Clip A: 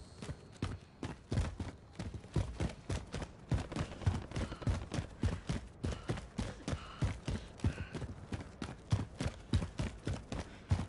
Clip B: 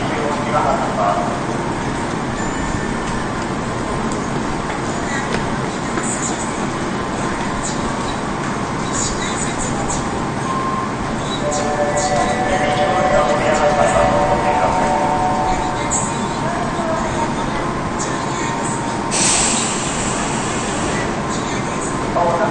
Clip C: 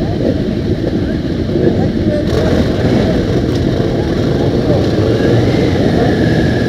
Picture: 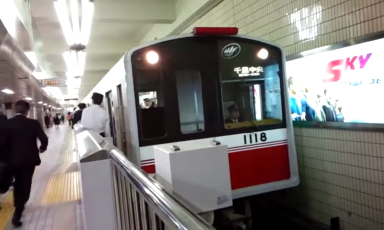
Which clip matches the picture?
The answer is B